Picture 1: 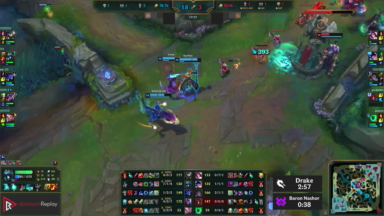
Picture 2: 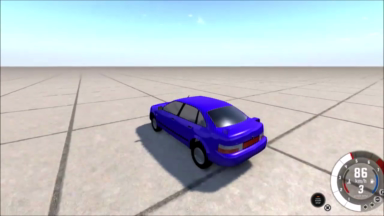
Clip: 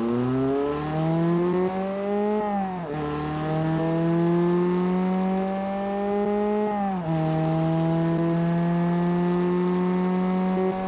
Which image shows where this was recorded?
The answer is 2